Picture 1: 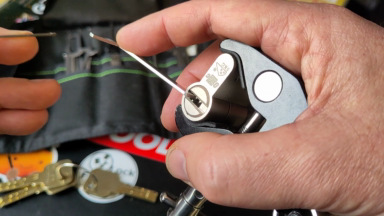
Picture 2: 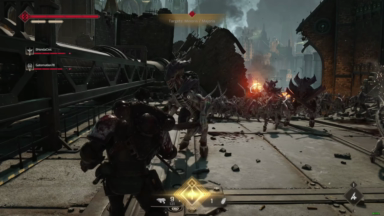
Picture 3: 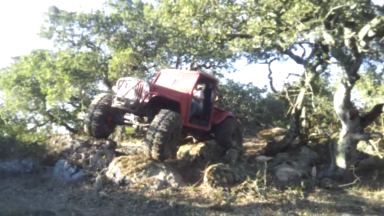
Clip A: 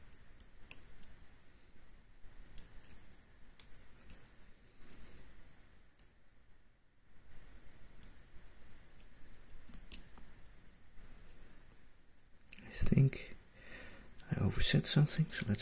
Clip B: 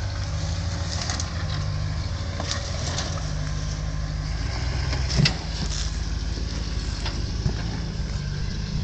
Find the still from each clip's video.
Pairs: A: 1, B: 3